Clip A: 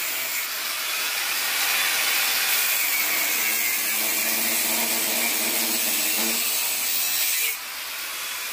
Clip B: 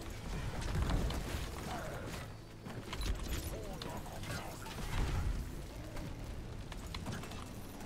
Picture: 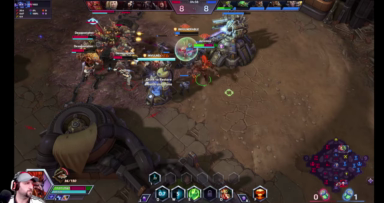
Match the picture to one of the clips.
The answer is B